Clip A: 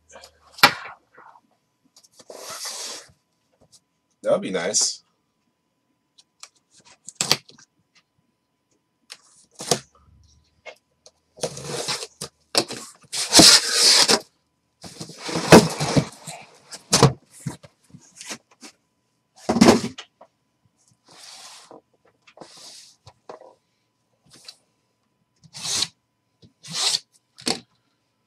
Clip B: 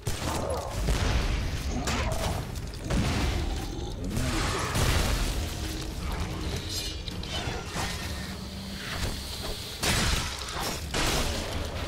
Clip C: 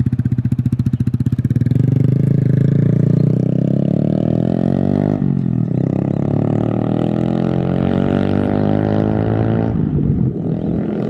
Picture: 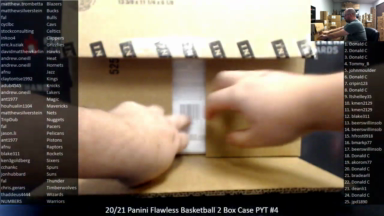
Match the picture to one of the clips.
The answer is A